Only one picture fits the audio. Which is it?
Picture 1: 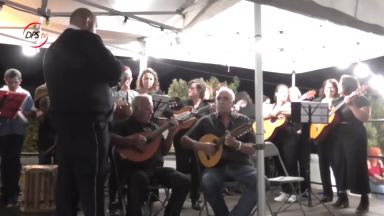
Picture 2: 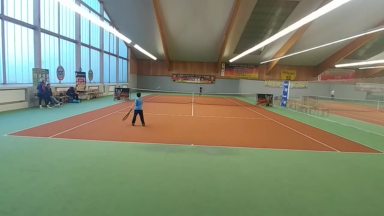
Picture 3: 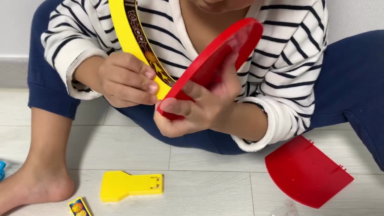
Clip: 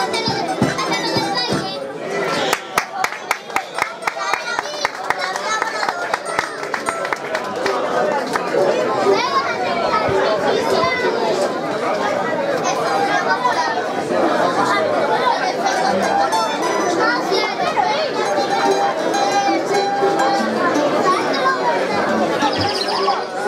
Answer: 1